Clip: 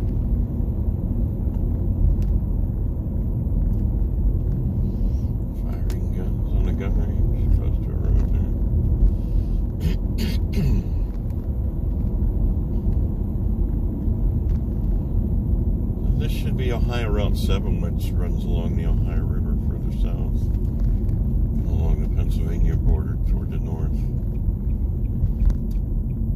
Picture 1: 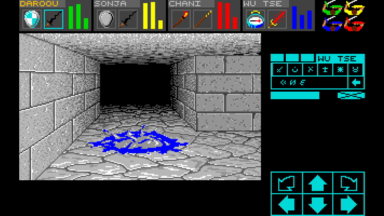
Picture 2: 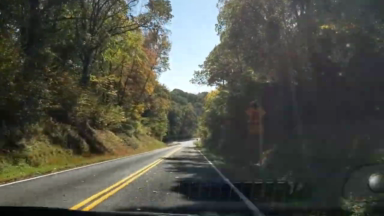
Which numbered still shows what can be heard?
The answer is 2